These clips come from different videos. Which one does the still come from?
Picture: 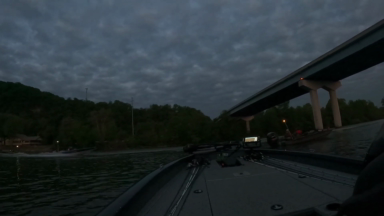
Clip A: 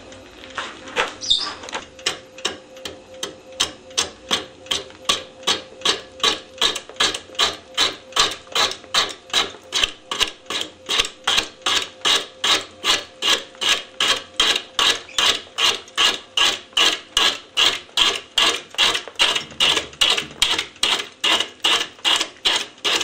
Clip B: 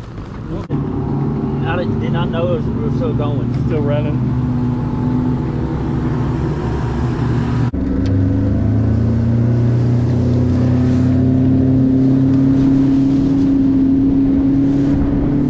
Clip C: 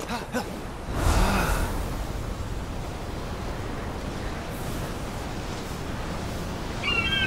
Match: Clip B